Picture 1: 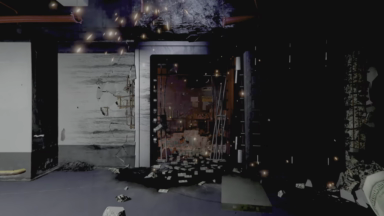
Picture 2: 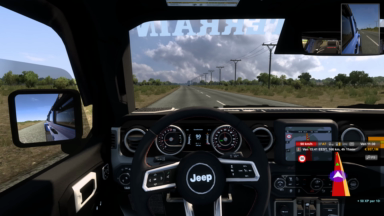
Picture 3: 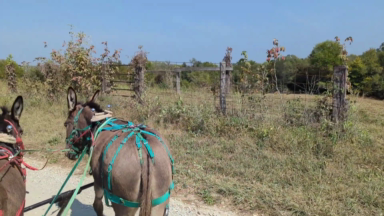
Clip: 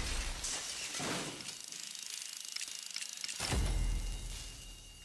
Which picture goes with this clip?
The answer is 1